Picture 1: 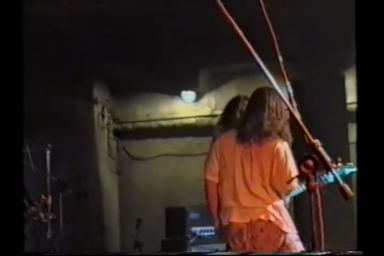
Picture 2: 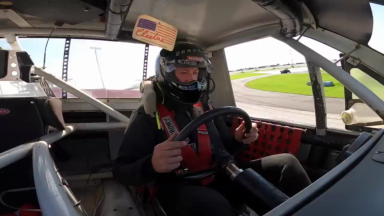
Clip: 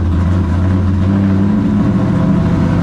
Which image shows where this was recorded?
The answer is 2